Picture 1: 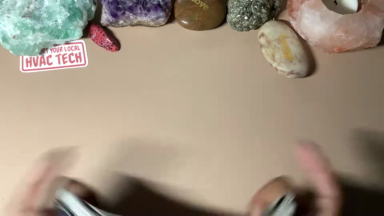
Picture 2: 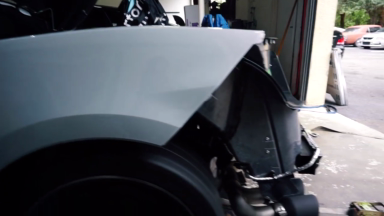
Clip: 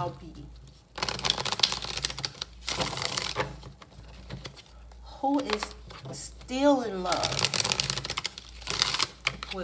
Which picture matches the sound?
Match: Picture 1